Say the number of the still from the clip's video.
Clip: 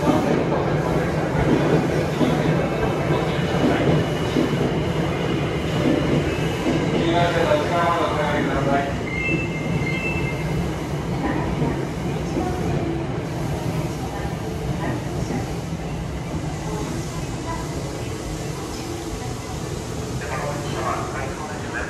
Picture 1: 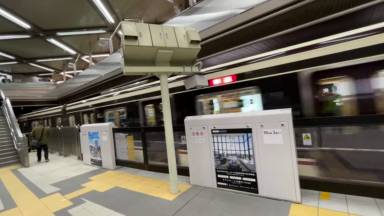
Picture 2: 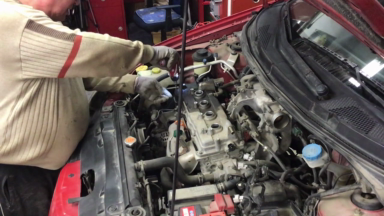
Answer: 1